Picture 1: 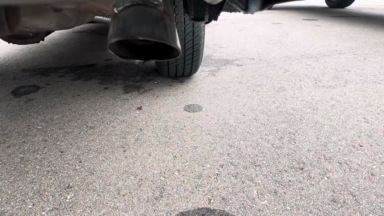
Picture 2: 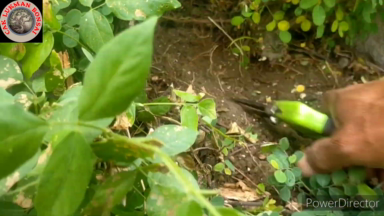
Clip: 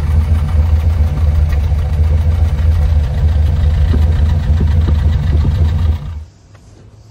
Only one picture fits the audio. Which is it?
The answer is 1